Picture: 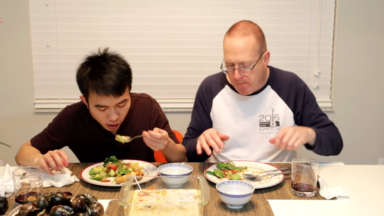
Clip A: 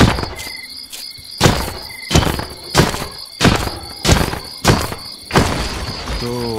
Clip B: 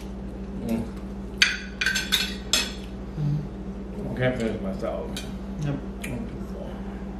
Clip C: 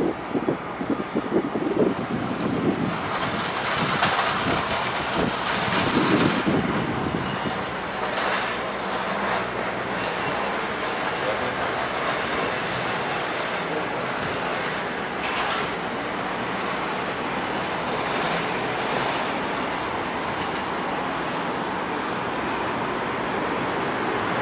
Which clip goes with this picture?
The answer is B